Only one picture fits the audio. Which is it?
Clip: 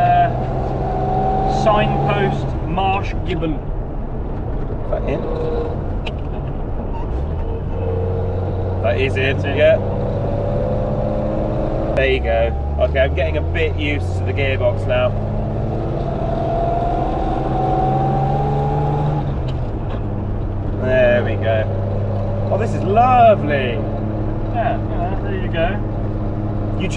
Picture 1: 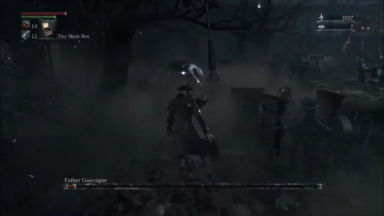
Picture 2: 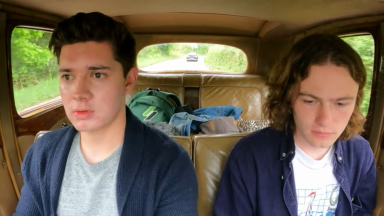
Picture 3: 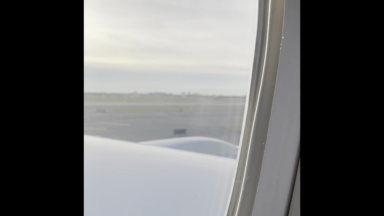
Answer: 2